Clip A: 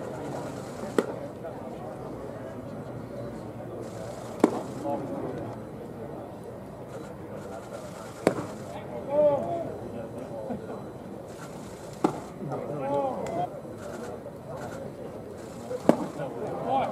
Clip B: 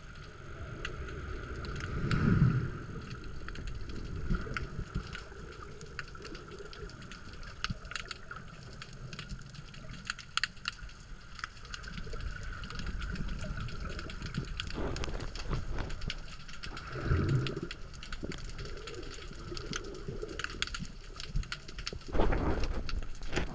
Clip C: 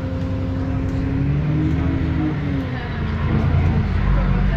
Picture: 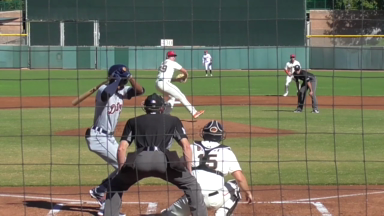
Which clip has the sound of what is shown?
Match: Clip A